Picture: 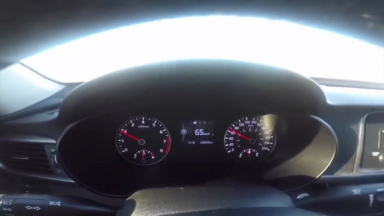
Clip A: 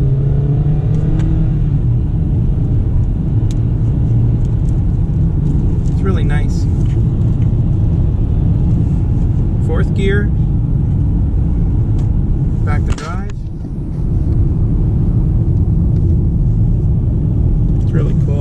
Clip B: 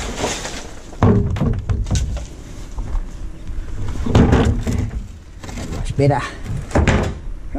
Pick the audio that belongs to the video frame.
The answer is A